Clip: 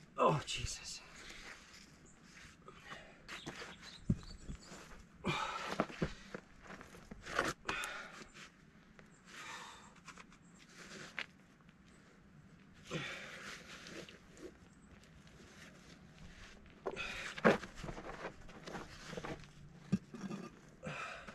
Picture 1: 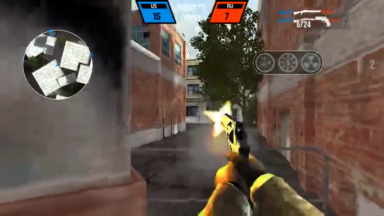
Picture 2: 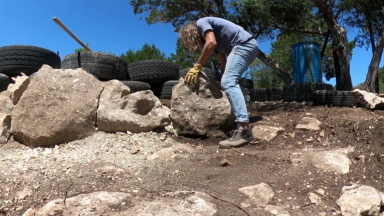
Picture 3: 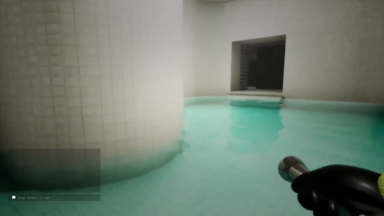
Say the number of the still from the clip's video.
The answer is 2